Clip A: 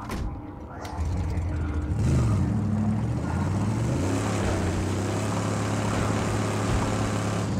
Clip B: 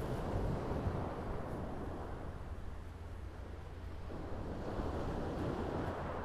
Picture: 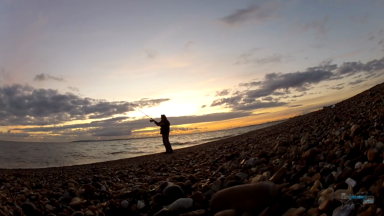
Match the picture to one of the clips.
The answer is B